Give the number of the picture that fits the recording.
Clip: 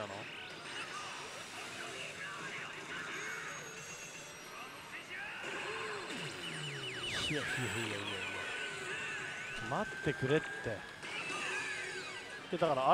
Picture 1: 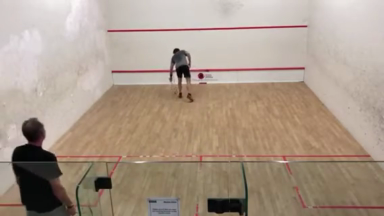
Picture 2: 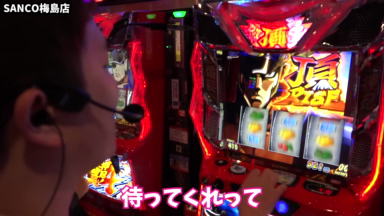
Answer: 2